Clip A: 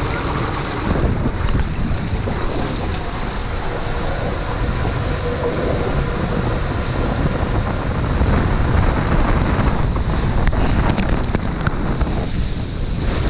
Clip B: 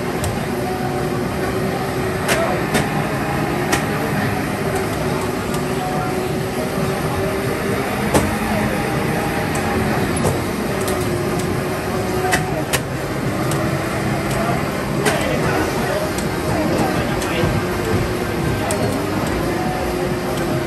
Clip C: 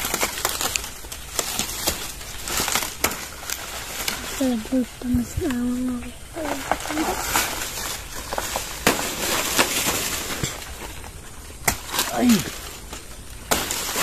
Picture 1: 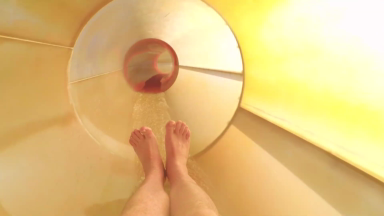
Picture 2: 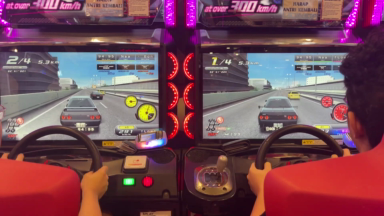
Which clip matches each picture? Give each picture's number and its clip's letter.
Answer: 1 A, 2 B